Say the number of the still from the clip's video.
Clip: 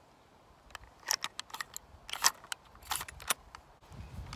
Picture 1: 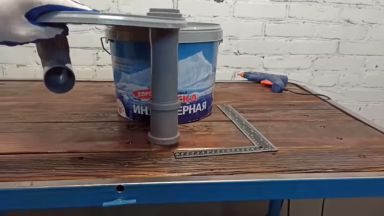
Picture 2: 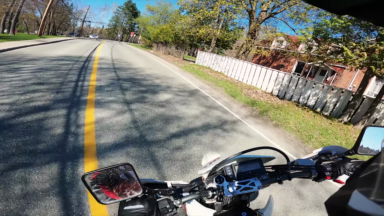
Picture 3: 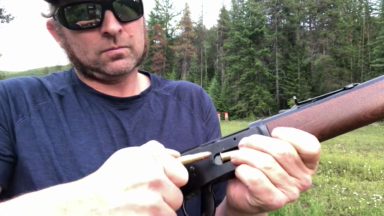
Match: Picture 3